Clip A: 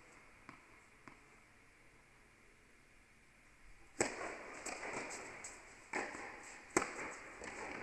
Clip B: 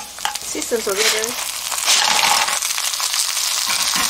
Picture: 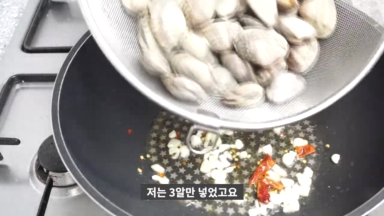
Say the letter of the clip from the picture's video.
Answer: B